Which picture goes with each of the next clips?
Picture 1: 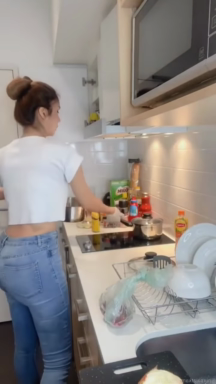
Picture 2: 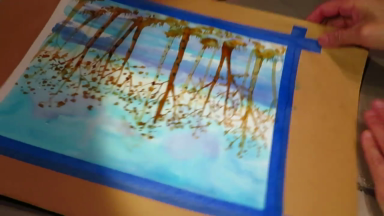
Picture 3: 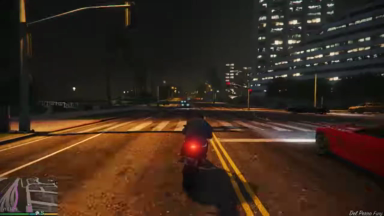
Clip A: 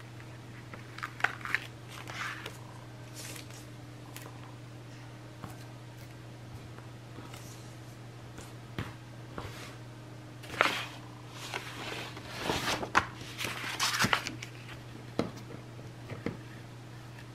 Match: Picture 2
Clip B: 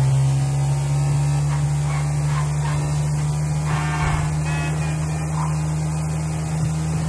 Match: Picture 3